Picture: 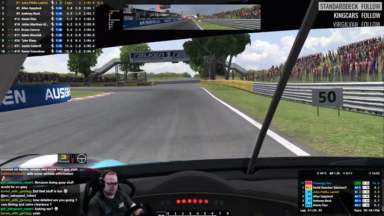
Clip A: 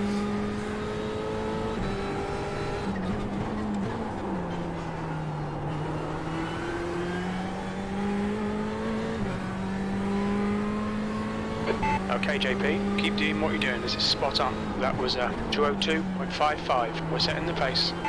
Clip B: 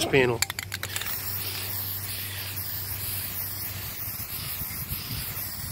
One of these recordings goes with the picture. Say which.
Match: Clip A